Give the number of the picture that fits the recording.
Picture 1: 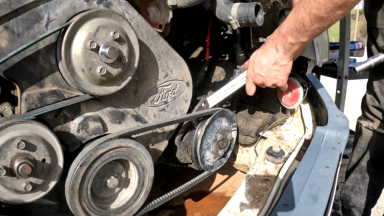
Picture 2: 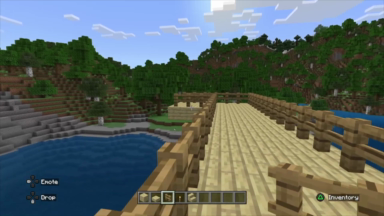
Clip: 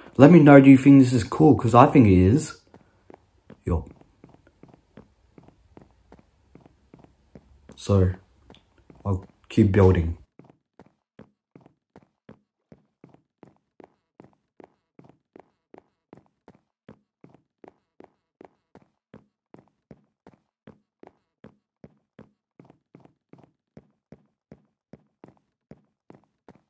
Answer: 2